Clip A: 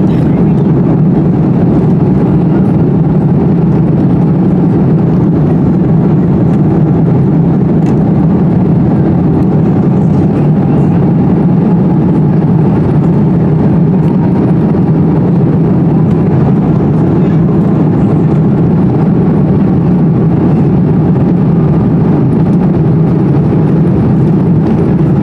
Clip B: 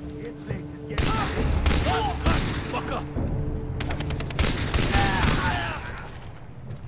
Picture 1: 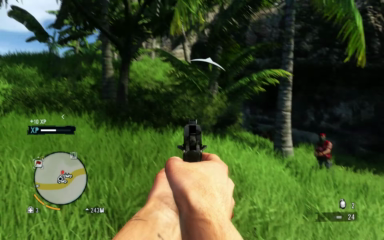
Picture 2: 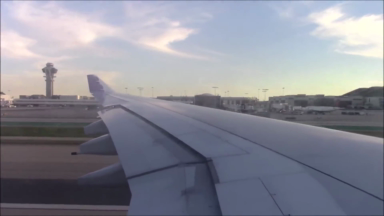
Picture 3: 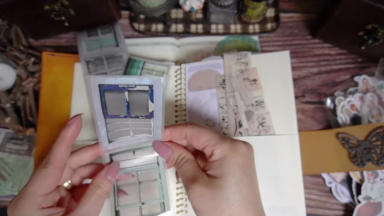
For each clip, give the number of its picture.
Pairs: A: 2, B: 1